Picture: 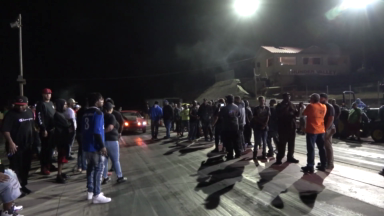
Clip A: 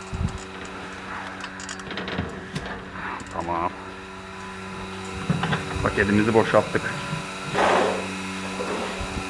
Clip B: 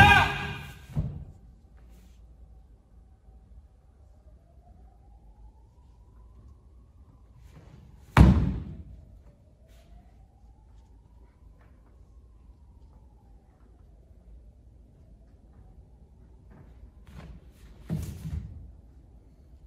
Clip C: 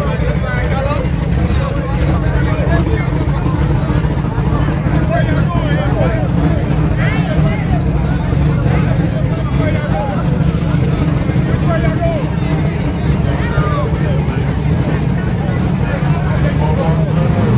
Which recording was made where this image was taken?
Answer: C